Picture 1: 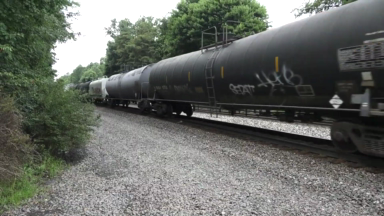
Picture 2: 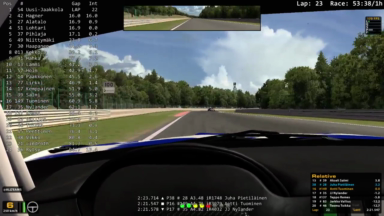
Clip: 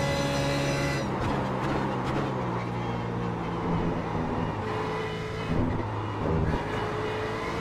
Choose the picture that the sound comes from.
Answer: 2